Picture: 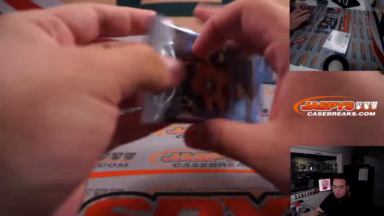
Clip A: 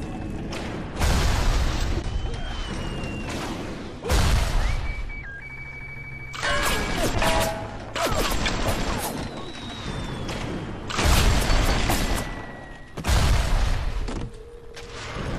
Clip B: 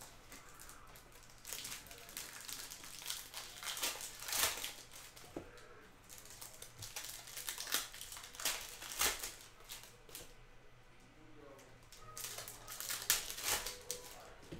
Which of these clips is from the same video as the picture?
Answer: B